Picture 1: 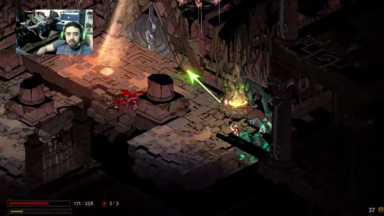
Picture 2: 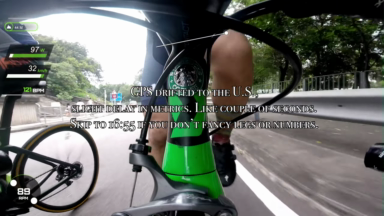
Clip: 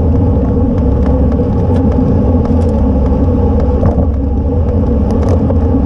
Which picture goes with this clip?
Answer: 2